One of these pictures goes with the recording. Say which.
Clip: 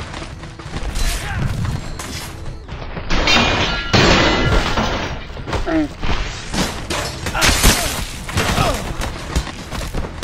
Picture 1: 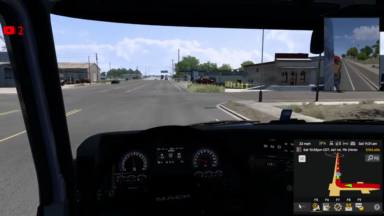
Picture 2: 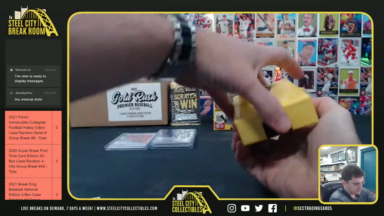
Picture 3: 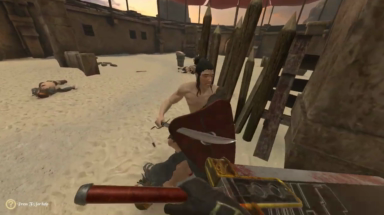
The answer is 3